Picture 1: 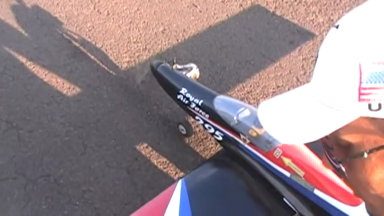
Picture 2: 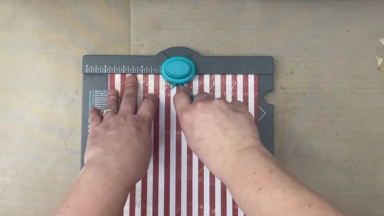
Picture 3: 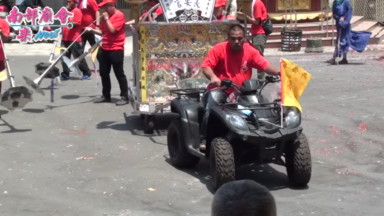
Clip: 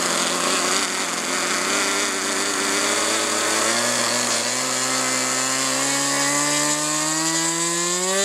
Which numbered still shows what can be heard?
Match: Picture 1